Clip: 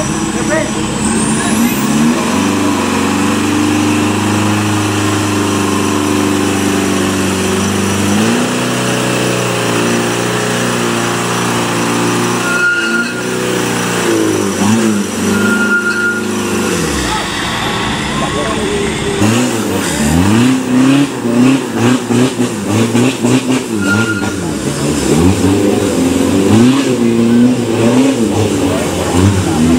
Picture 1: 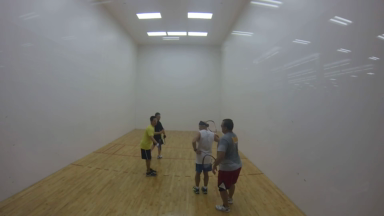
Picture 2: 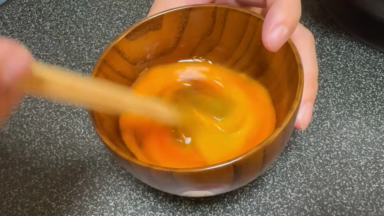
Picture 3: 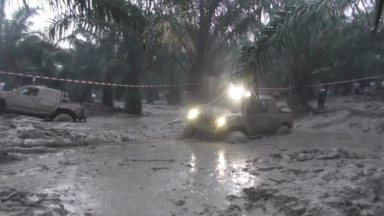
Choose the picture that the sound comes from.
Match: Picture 3